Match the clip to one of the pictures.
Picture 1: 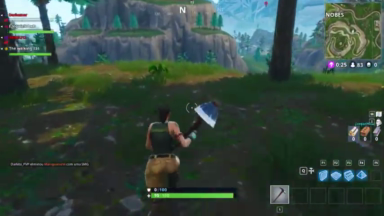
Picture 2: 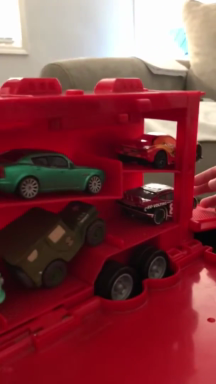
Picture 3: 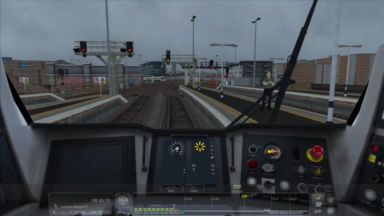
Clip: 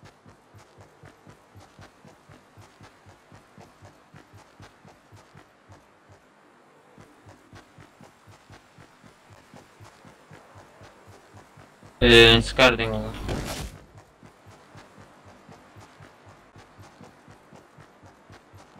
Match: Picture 1